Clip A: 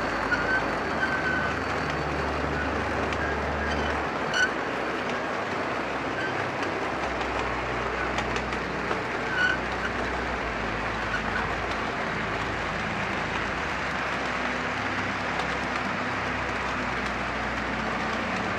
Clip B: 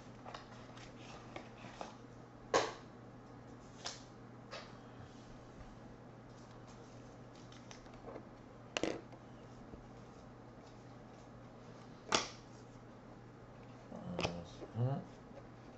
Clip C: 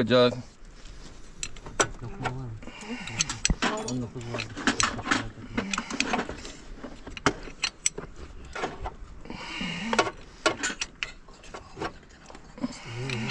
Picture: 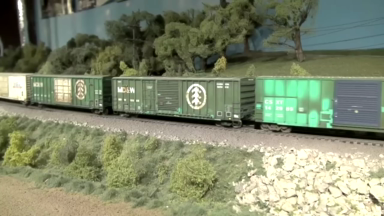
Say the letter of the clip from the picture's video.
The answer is A